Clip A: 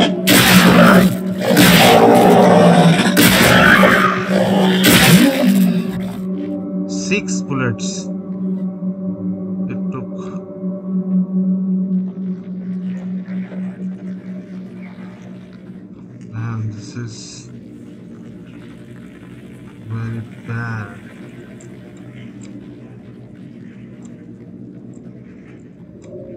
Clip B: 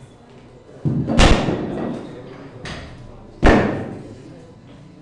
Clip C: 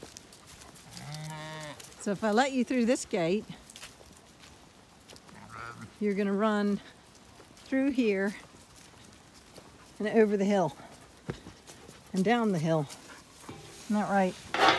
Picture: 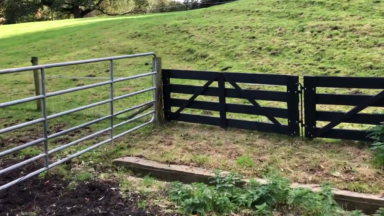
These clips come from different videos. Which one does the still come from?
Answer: C